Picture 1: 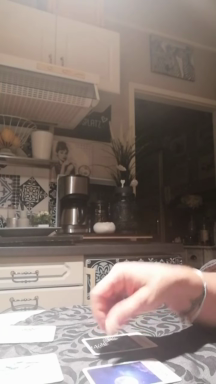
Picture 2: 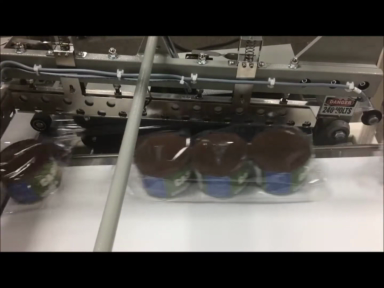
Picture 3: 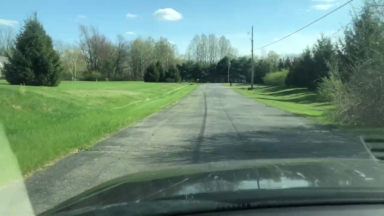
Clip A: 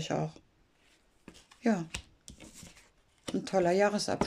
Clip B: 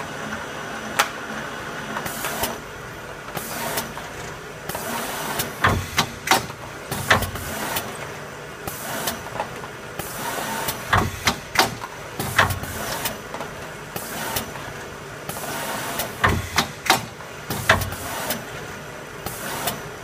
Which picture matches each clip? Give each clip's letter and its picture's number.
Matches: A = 1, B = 2